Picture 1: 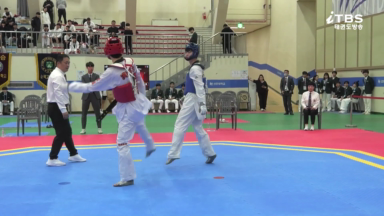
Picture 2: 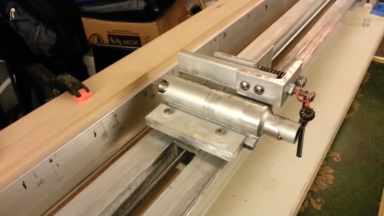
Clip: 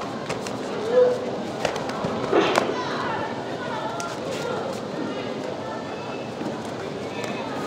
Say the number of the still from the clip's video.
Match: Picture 1